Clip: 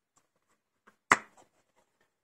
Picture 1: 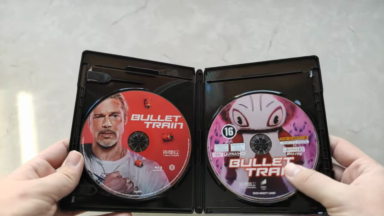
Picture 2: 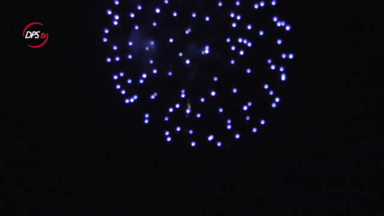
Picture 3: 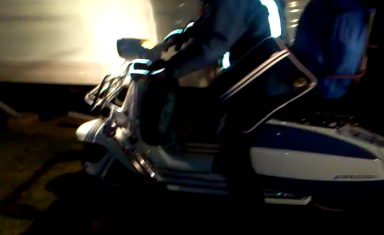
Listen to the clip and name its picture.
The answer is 1